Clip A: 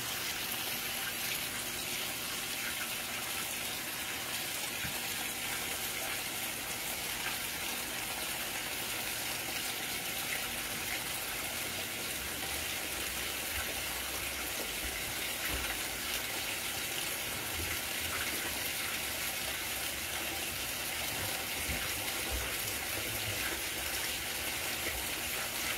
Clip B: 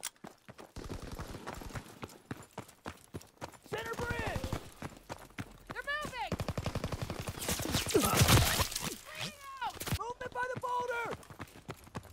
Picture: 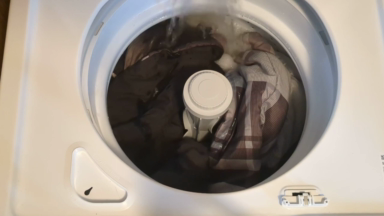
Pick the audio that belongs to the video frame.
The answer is A